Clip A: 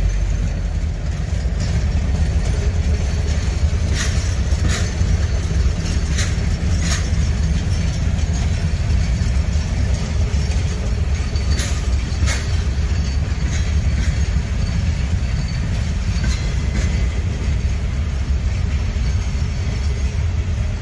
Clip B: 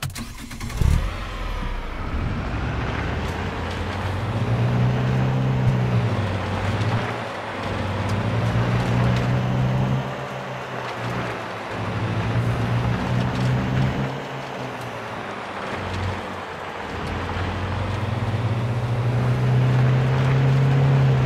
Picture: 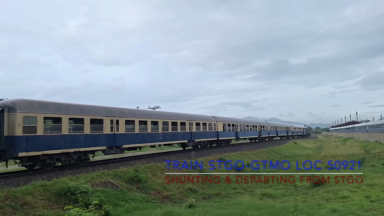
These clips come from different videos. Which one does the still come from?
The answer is A